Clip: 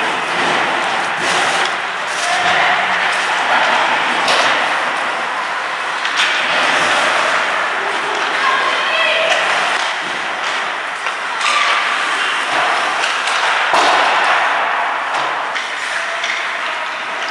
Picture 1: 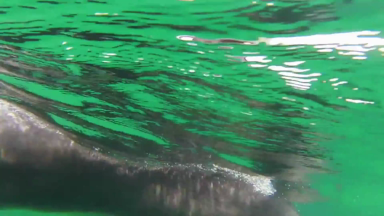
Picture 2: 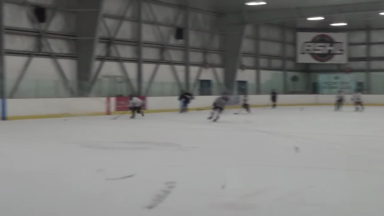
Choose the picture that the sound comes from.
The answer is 2